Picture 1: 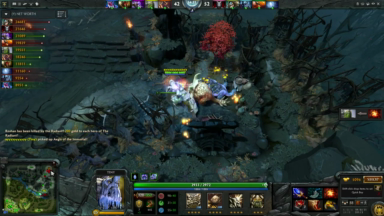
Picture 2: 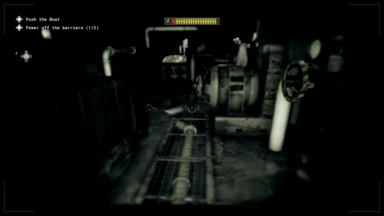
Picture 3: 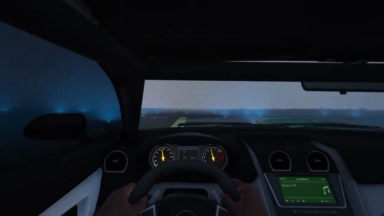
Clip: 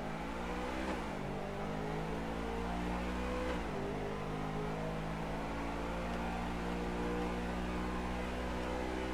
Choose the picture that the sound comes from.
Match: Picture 3